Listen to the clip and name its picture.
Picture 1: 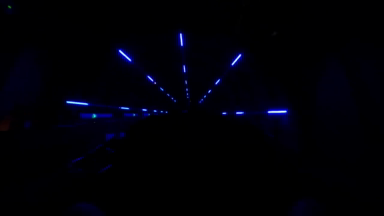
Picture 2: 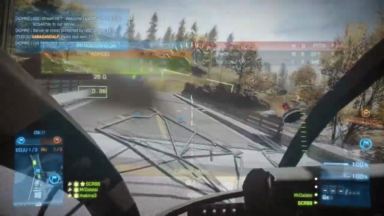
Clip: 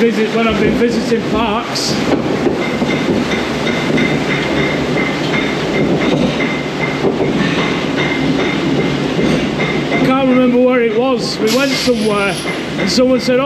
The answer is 1